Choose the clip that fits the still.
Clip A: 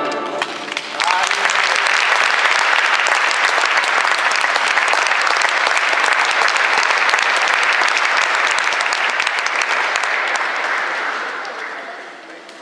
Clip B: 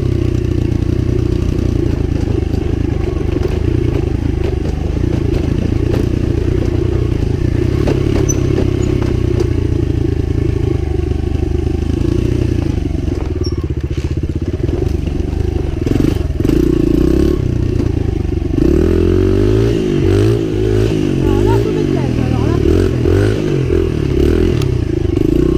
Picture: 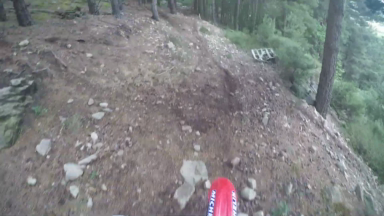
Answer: B